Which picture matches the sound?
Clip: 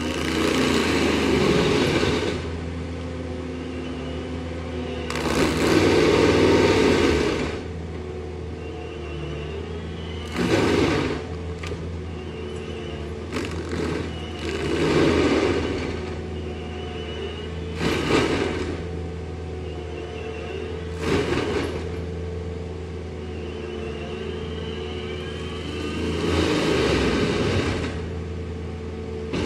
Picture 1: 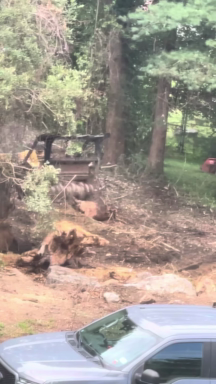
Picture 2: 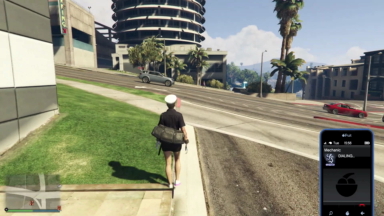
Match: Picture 1